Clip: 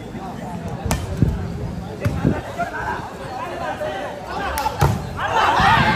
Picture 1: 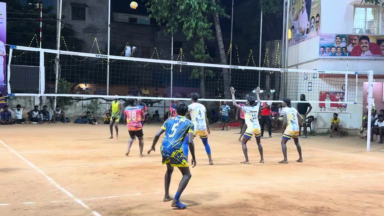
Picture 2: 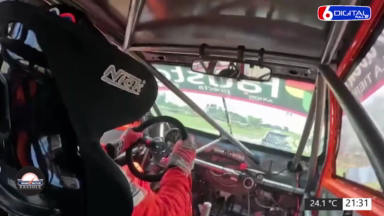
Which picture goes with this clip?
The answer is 1